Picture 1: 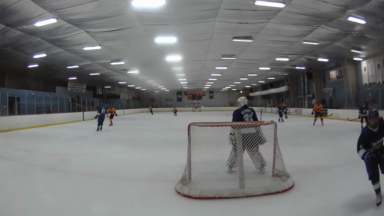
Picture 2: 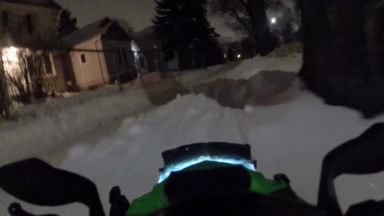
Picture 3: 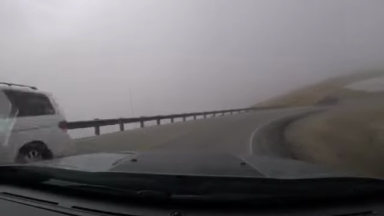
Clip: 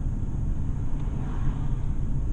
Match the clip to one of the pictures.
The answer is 3